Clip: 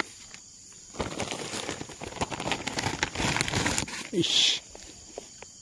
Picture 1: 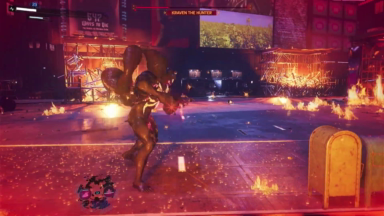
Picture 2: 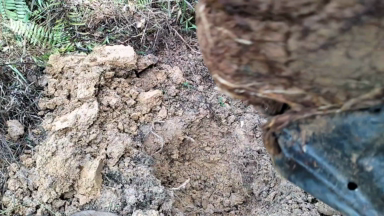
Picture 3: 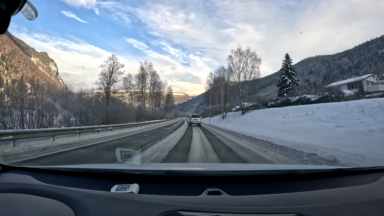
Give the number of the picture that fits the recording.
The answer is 2